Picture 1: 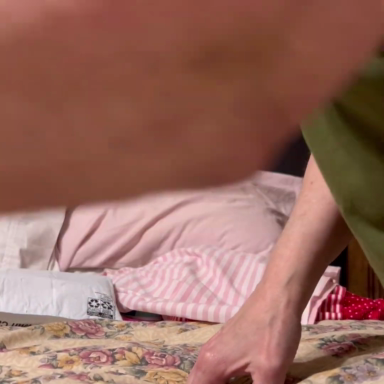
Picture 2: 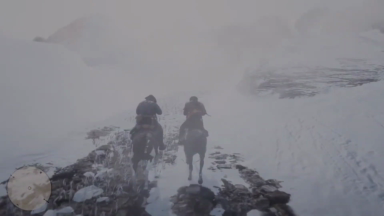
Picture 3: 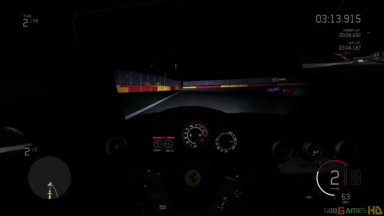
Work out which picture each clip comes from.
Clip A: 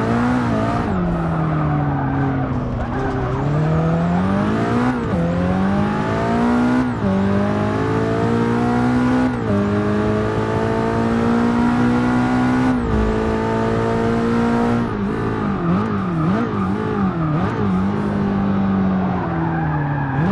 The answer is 3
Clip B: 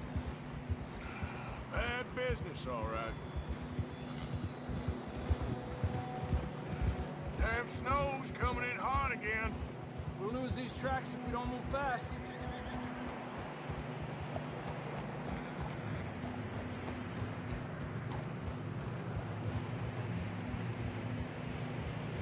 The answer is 2